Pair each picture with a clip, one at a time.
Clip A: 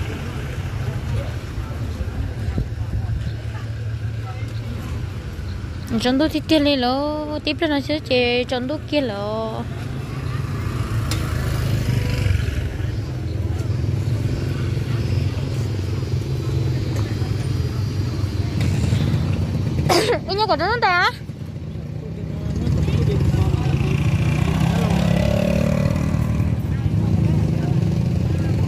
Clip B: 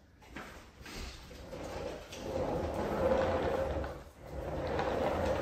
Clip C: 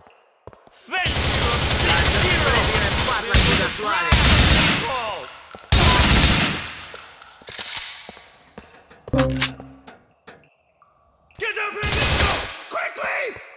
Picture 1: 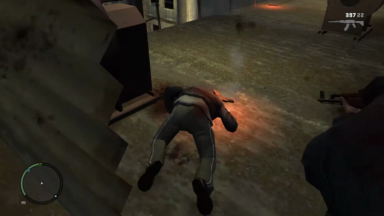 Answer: C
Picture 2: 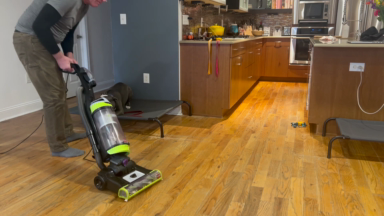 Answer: B